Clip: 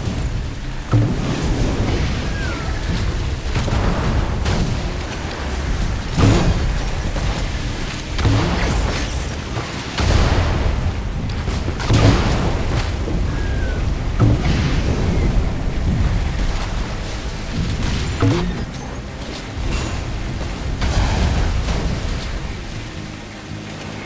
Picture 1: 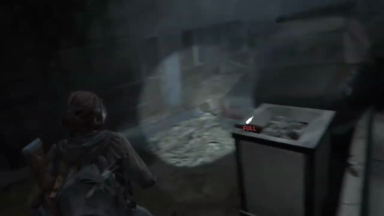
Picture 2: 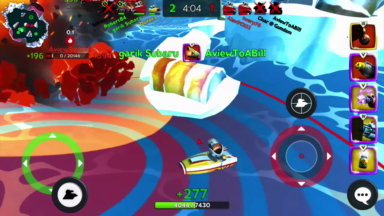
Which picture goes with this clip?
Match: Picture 2